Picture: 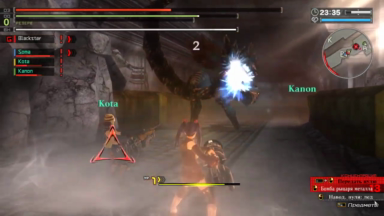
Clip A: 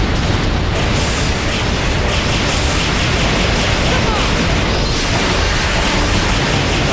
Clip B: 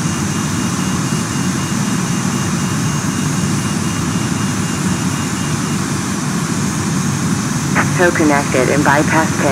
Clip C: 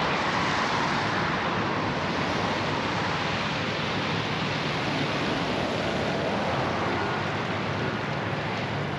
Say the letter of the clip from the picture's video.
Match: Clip A